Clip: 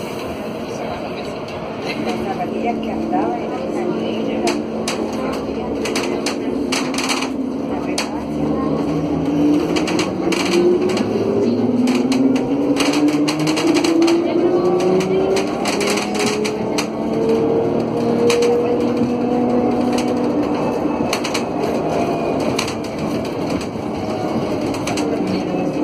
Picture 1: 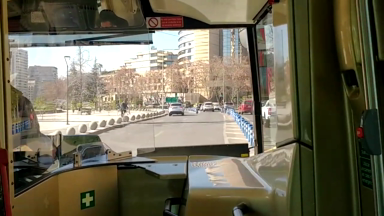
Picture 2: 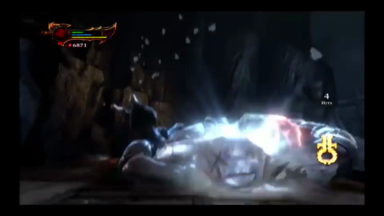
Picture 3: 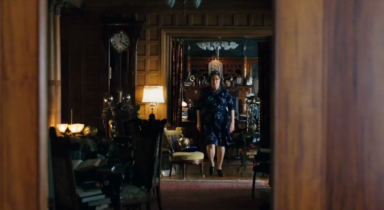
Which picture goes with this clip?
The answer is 1